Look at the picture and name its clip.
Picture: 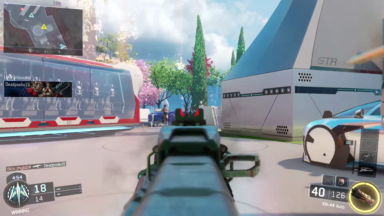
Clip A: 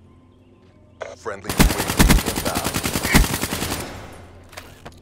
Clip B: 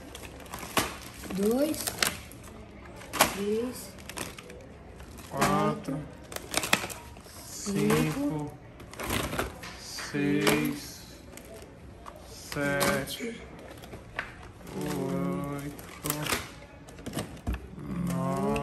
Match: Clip A